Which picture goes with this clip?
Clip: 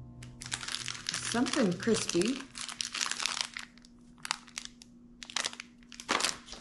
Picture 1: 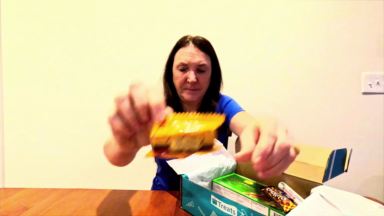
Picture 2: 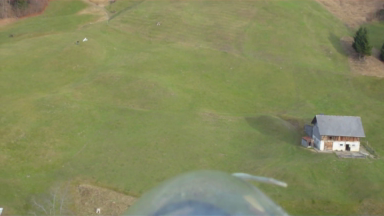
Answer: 1